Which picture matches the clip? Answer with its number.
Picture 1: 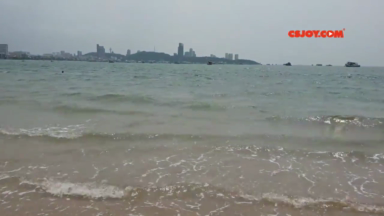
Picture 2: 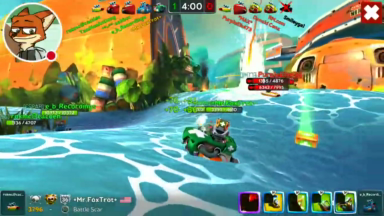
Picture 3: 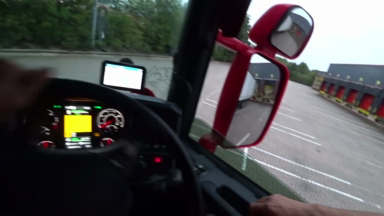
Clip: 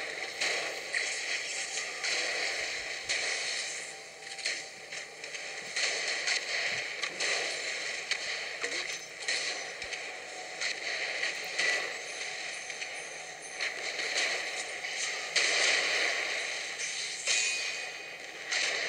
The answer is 2